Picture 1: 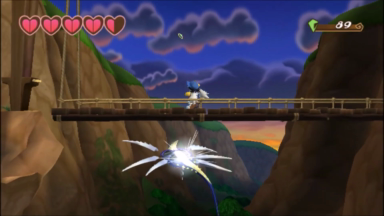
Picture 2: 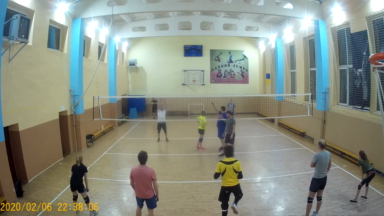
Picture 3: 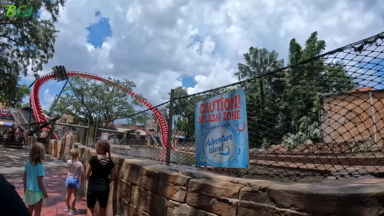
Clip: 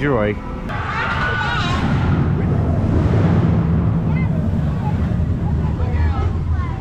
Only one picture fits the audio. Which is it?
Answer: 3